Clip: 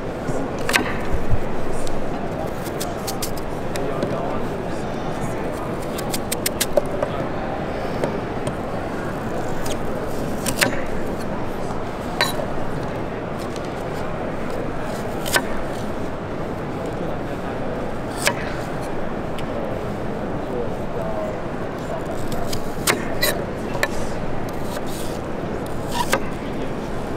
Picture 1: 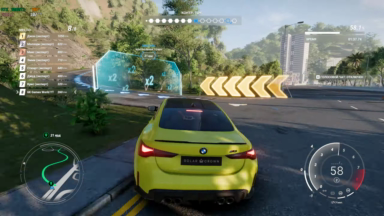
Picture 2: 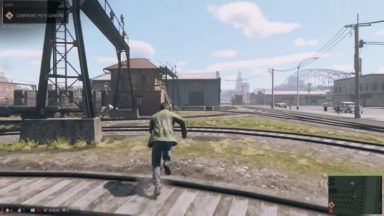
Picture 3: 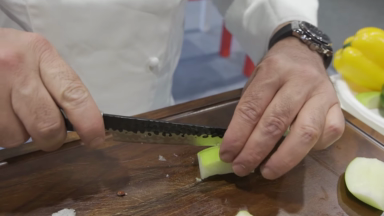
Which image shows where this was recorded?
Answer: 3